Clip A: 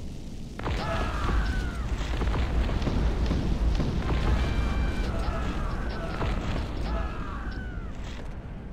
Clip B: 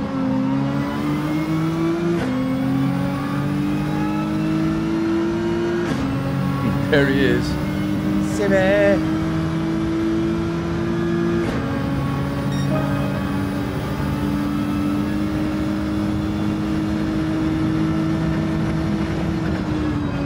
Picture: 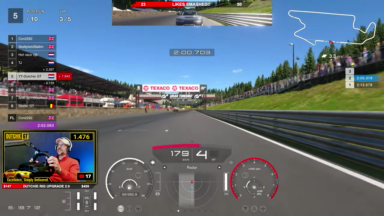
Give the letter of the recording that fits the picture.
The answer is B